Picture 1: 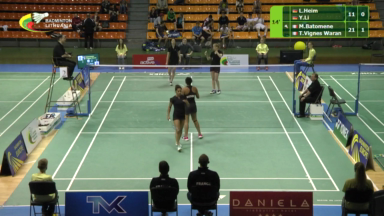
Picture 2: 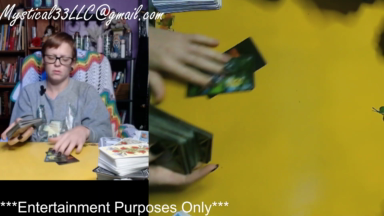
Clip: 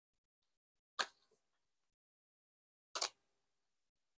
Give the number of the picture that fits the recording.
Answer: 2